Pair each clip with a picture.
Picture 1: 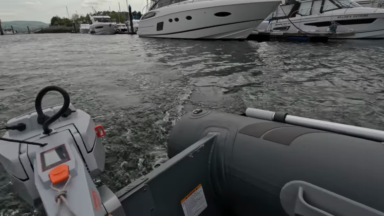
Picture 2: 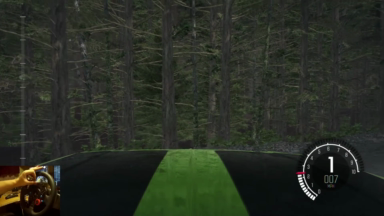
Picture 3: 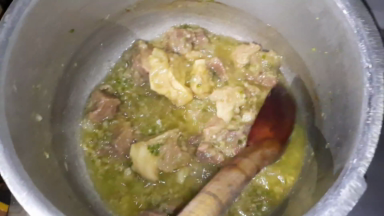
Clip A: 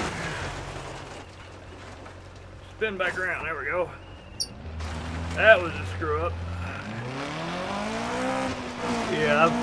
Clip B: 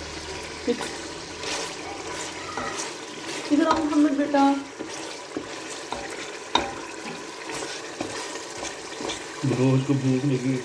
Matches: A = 2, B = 3